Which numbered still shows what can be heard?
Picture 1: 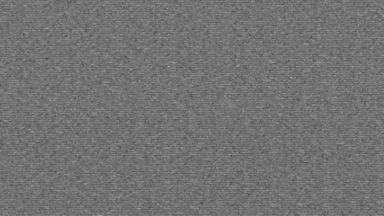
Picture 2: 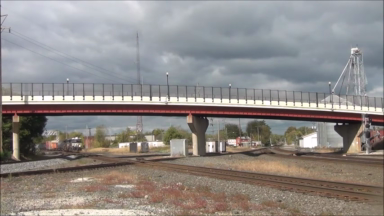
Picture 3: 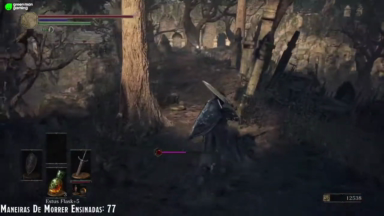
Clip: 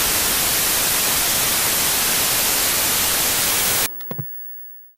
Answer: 1